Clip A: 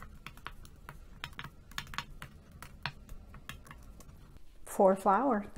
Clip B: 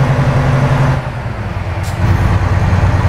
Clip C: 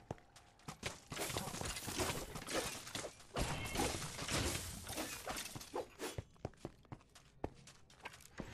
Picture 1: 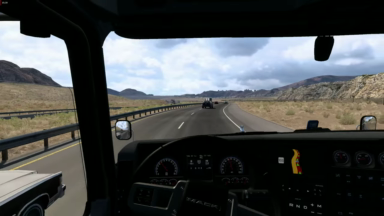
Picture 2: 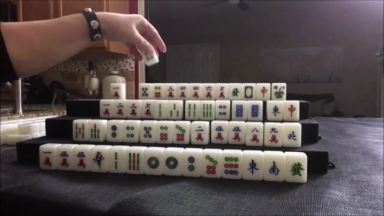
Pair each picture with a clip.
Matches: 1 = B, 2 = A